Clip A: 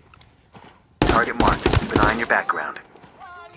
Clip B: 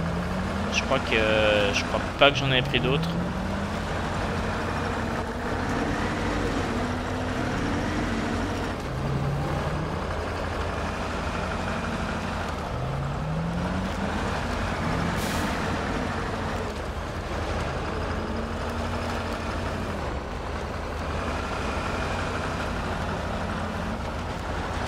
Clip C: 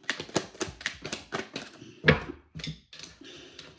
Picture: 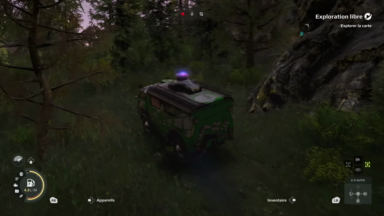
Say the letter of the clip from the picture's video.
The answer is B